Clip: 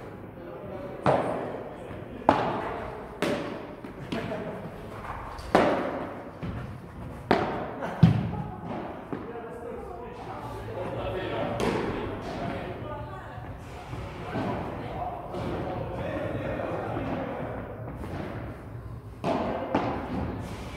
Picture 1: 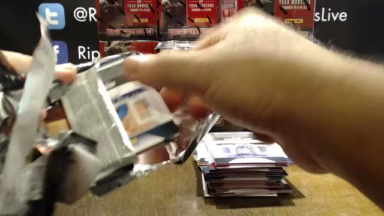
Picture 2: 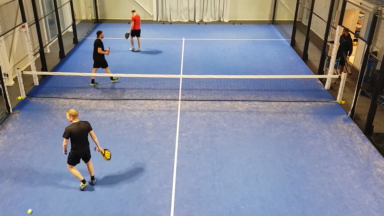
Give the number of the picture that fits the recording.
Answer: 2